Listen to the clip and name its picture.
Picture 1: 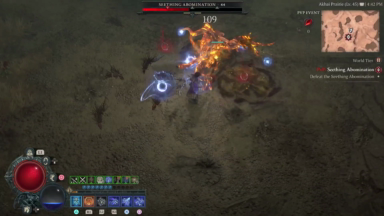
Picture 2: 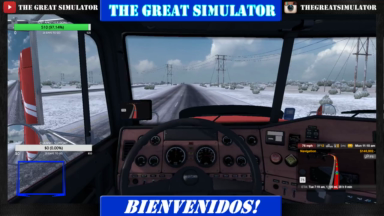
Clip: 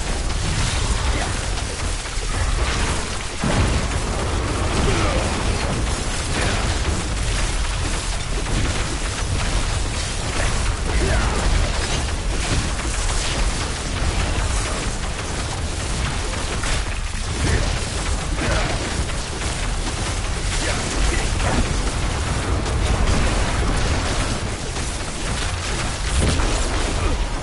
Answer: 1